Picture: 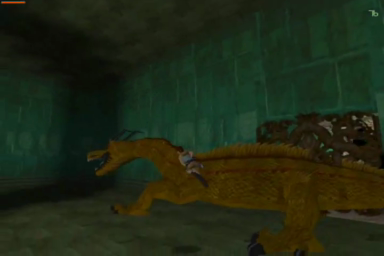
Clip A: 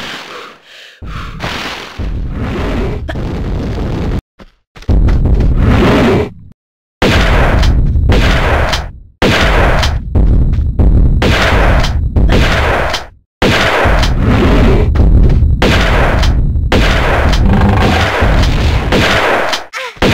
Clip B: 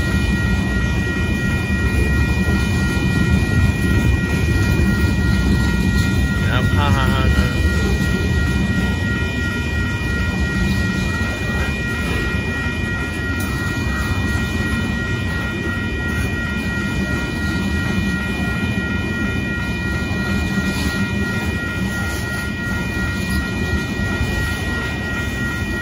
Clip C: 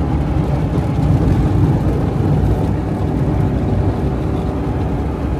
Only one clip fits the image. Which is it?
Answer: A